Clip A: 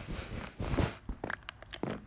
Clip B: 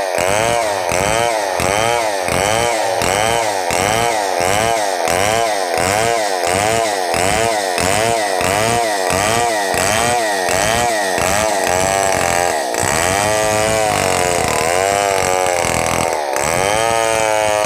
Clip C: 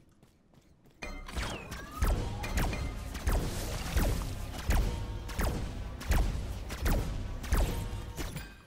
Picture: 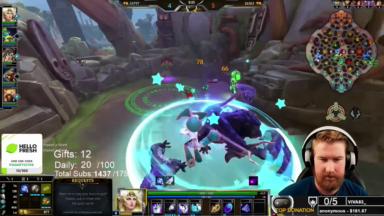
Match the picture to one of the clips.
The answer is C